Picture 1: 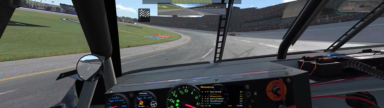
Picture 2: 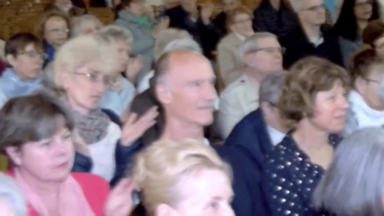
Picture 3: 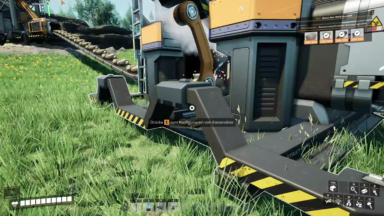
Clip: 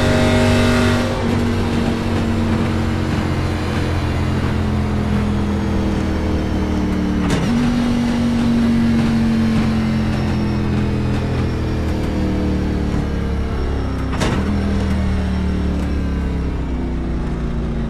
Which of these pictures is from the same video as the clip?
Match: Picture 1